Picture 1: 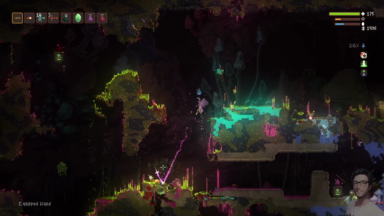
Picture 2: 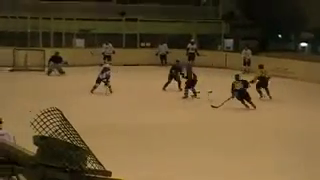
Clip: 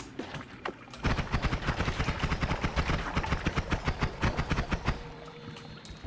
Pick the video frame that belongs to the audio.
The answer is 1